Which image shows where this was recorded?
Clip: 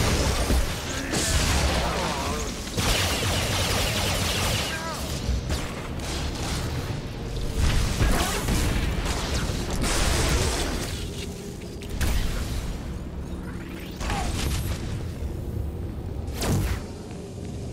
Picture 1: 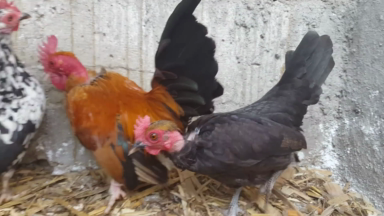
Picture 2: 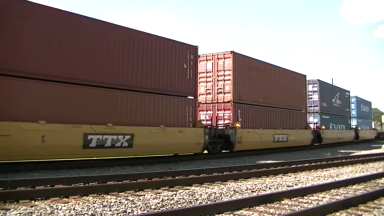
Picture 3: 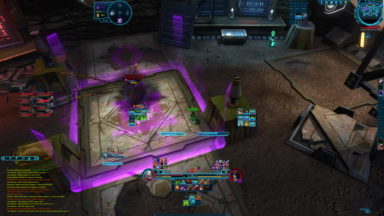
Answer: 3